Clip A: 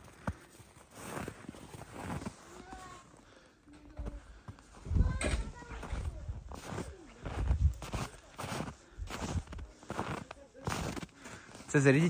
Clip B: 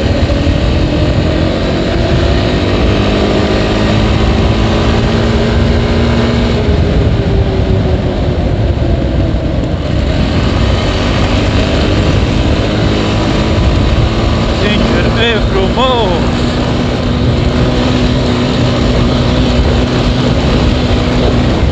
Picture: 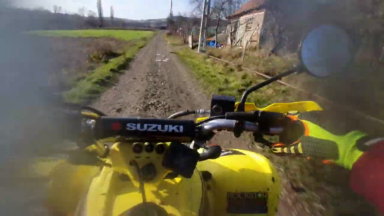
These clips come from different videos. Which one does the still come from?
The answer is B